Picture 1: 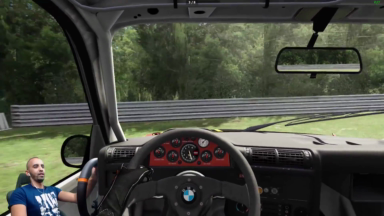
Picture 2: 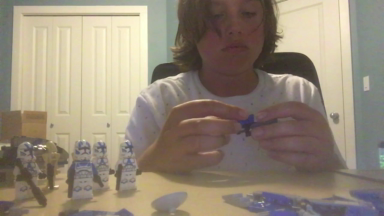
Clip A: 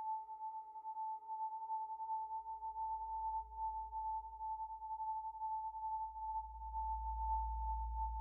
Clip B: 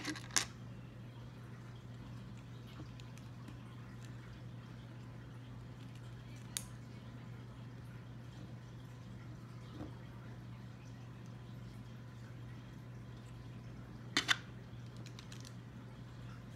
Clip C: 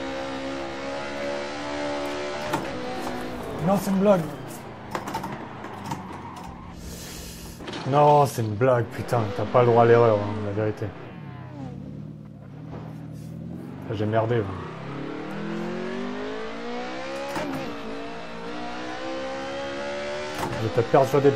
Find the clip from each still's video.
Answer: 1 C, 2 B